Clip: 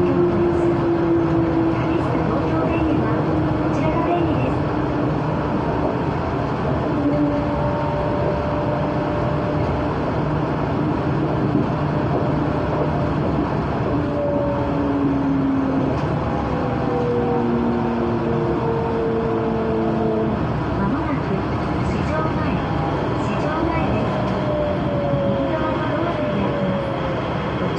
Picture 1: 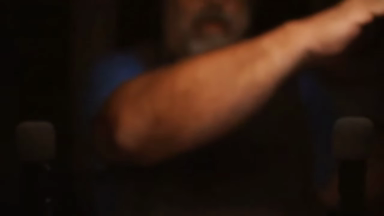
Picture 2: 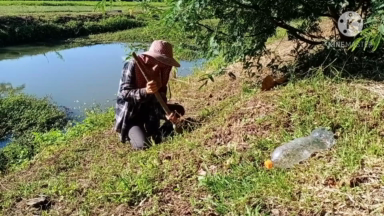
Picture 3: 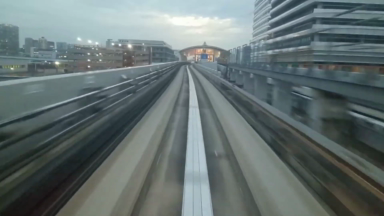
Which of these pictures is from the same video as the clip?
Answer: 3